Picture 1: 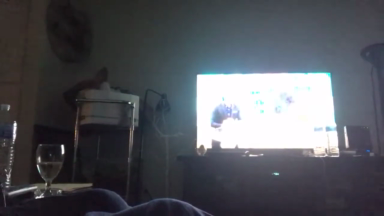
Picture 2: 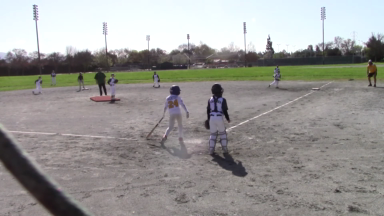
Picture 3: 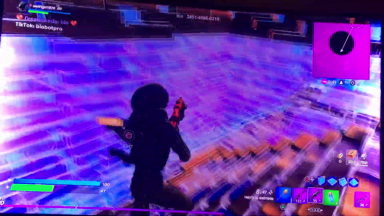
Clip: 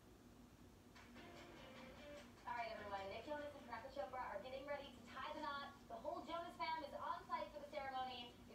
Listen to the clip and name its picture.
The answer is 1